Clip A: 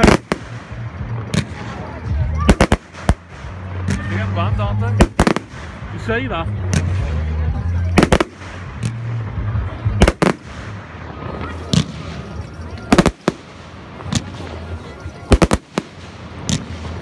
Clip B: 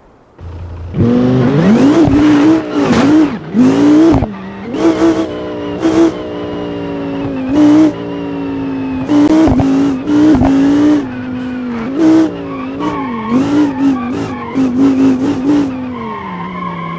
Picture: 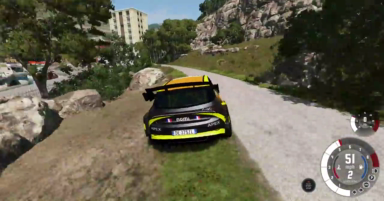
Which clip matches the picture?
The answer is B